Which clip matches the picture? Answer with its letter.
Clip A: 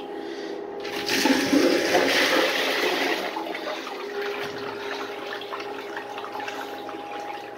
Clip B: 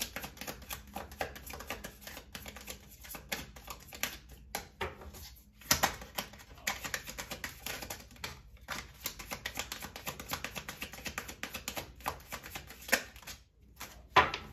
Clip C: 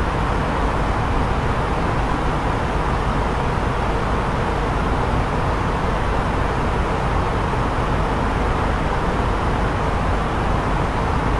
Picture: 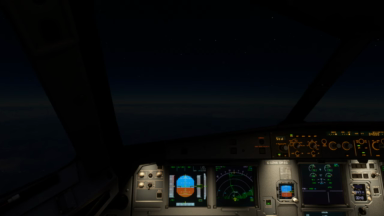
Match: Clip C